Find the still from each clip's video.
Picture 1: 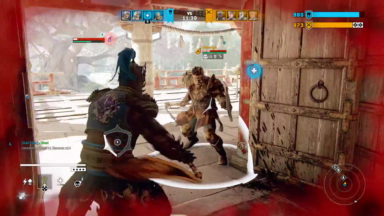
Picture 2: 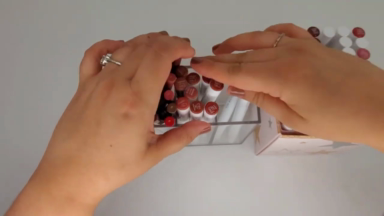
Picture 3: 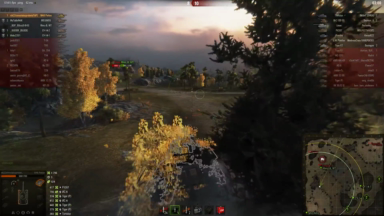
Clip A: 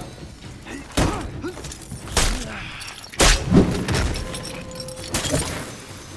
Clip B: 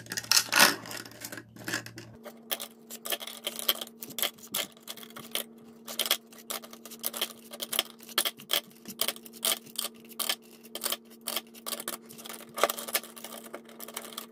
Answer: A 1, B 2